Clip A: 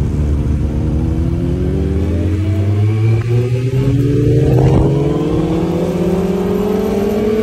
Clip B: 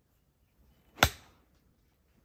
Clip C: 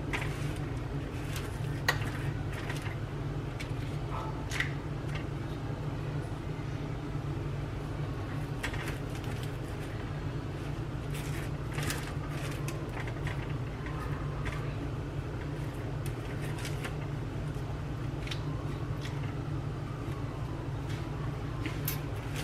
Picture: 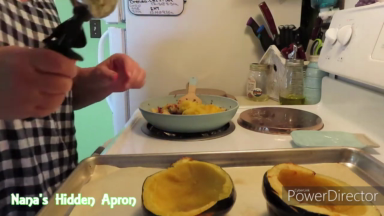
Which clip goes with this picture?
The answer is C